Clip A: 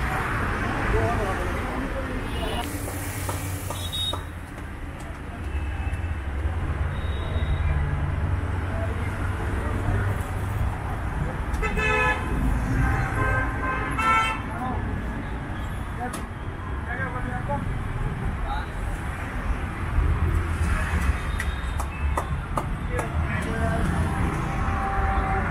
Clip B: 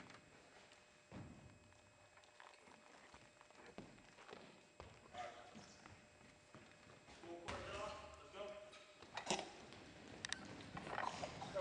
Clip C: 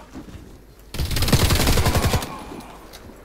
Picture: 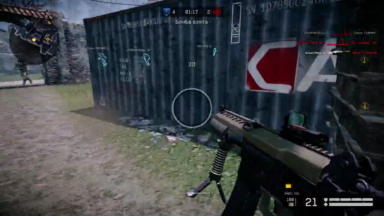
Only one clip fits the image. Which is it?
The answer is C